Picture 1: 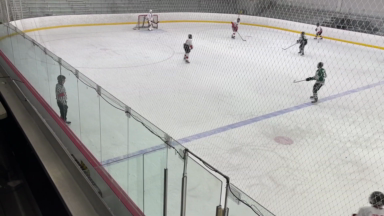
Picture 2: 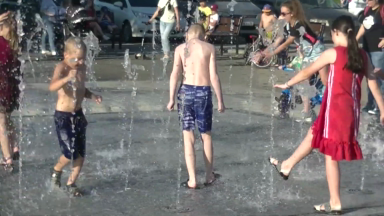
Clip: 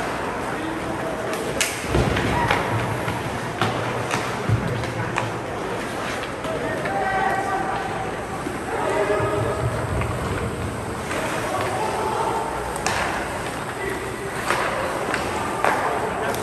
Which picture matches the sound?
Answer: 1